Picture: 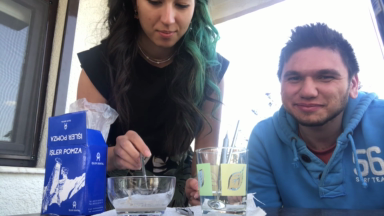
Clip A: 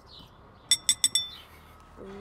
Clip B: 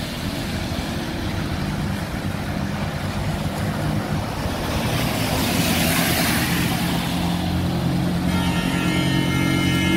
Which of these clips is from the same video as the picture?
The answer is A